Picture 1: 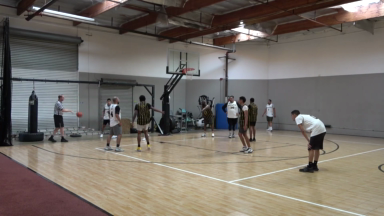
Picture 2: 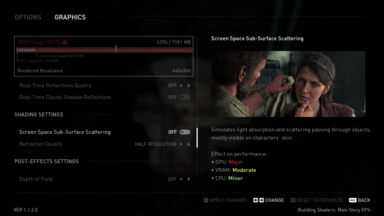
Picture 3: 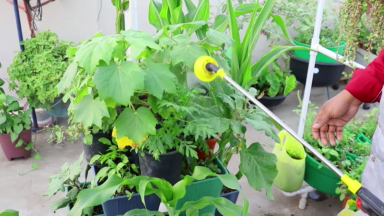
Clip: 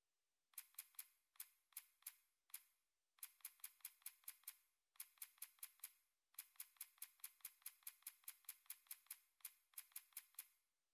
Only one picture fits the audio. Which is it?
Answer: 2